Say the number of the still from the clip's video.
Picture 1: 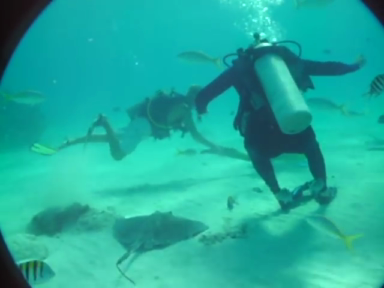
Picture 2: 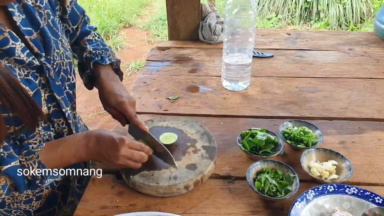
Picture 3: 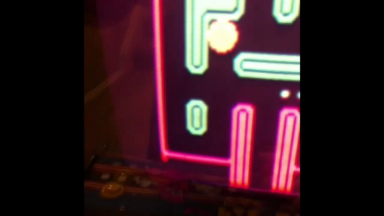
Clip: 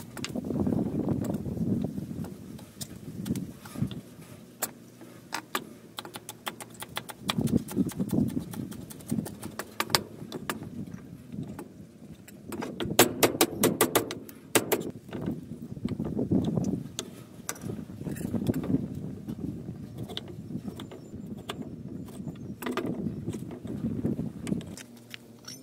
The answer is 2